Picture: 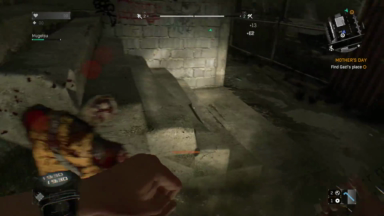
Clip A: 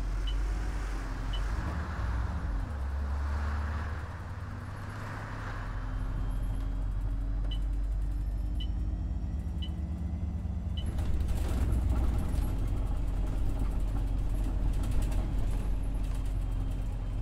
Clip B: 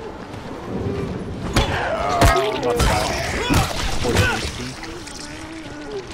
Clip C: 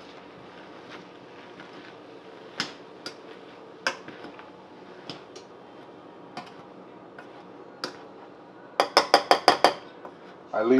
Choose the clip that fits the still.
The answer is B